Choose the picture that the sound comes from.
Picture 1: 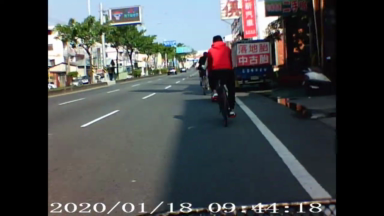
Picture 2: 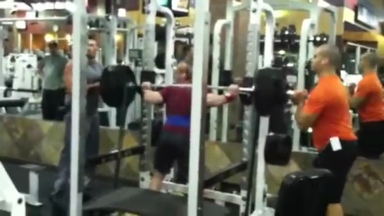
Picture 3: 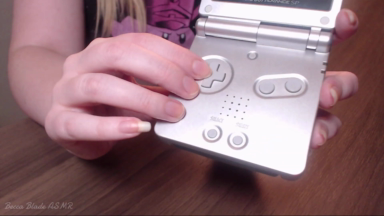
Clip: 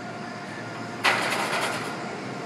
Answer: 2